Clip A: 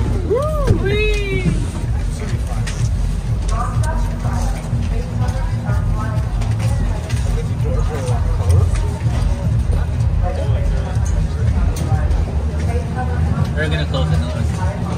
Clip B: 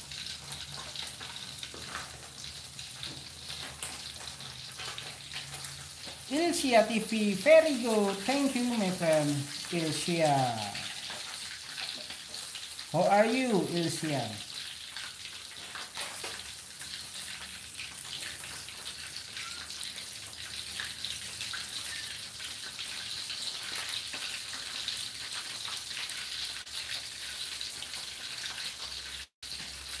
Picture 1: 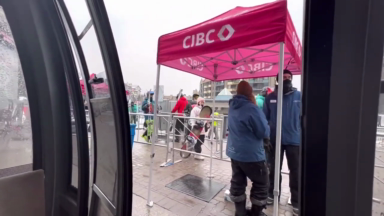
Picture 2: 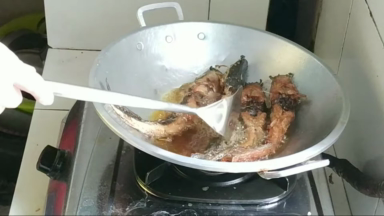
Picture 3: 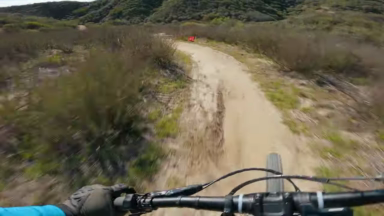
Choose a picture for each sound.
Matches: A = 1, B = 2